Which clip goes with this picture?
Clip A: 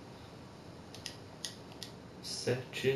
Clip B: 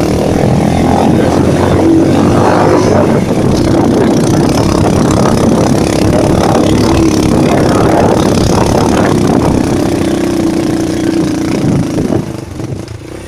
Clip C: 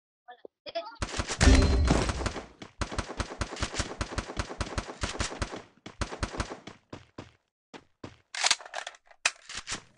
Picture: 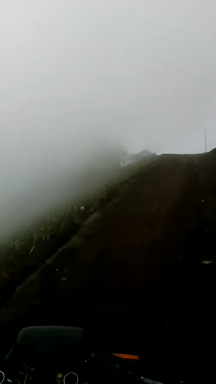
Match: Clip B